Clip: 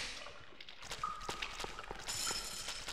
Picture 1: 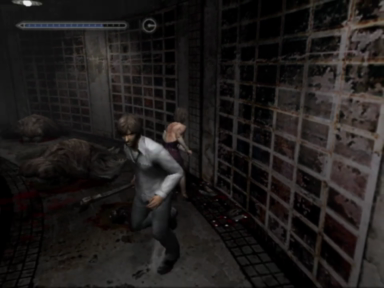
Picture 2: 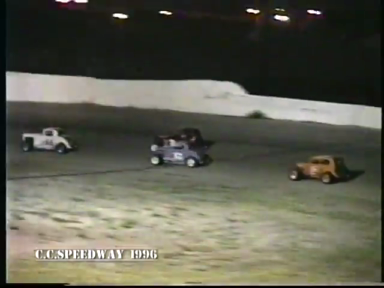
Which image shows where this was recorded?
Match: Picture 1